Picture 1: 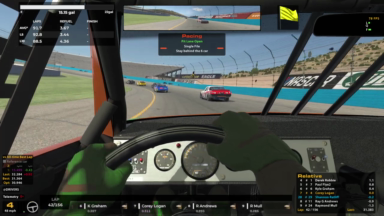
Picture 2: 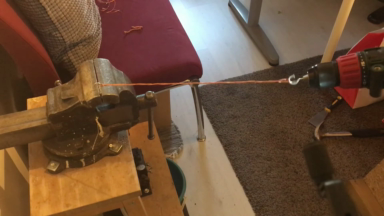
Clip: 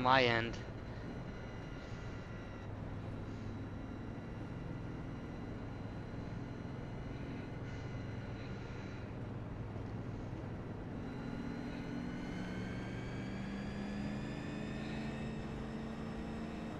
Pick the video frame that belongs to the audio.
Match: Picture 1